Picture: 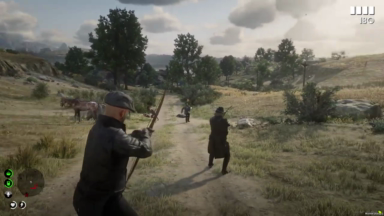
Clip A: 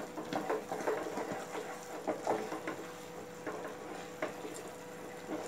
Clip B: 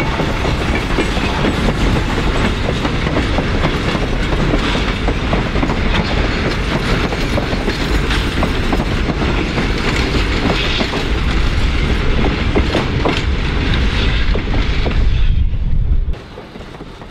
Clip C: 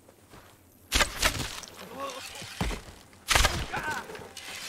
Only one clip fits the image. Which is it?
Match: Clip C